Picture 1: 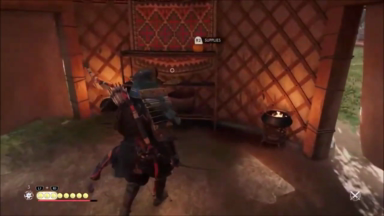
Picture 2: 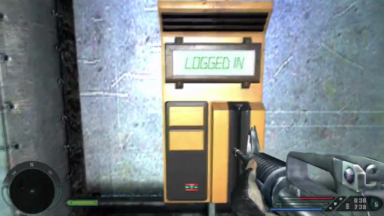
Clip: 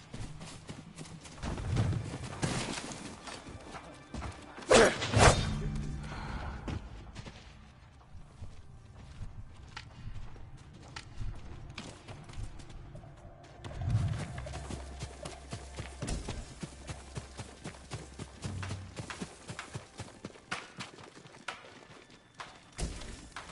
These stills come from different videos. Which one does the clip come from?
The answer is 1